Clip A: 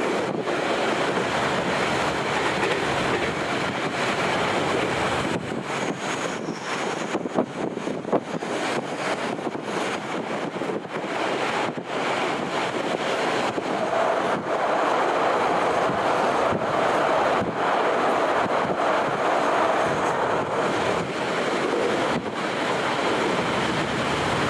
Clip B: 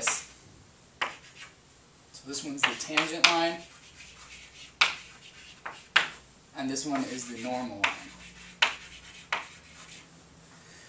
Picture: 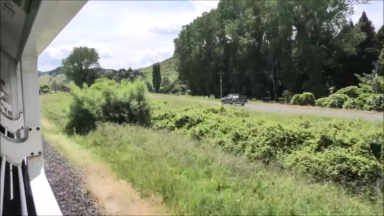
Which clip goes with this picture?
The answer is A